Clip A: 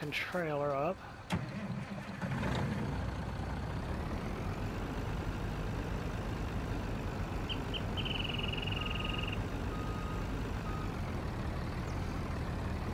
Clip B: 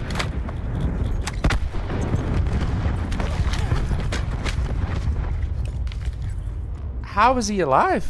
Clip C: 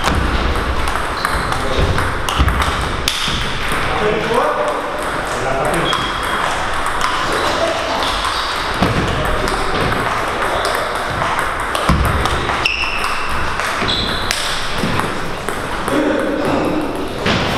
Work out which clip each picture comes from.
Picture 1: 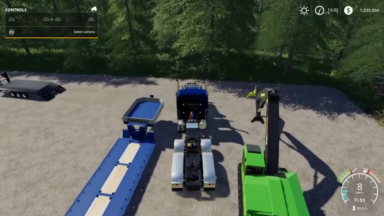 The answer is A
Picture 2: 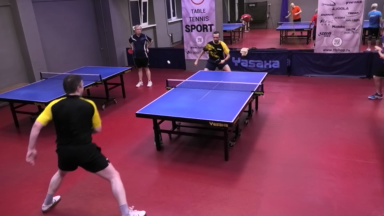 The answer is C